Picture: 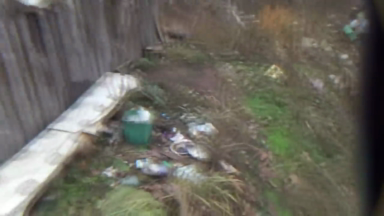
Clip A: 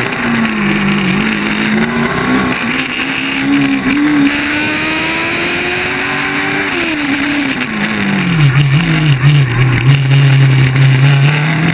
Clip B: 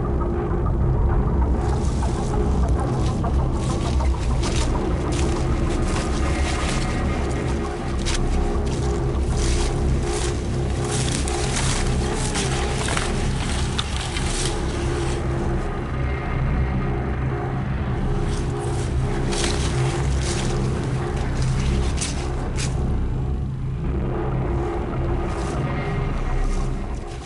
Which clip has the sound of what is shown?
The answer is B